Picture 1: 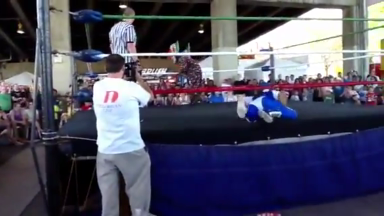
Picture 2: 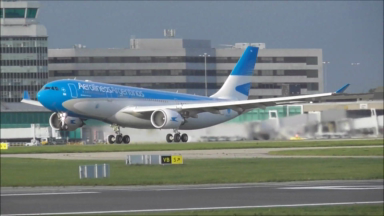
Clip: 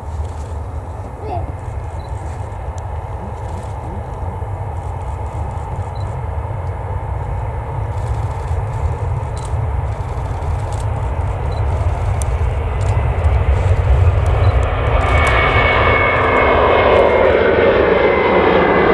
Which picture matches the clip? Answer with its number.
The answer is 2